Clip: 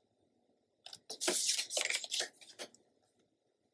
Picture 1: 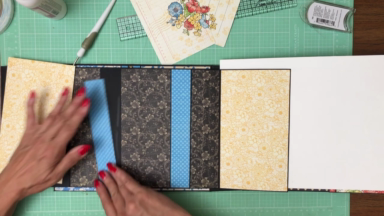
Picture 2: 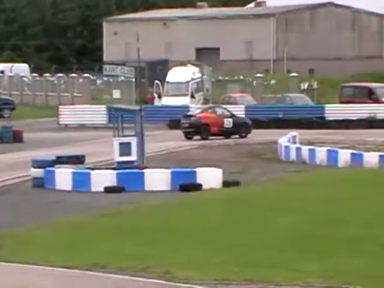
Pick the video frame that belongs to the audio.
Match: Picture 1